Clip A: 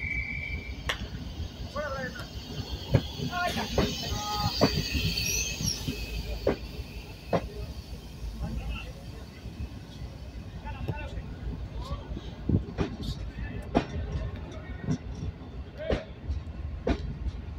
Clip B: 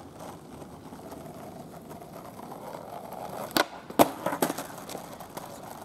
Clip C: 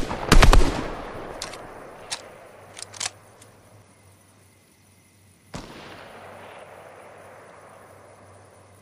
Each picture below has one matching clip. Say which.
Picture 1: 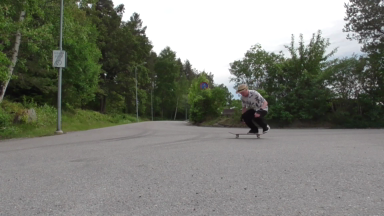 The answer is B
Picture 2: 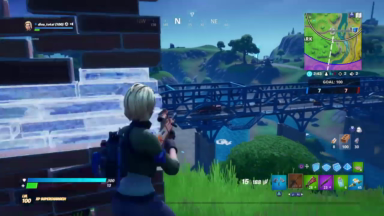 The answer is C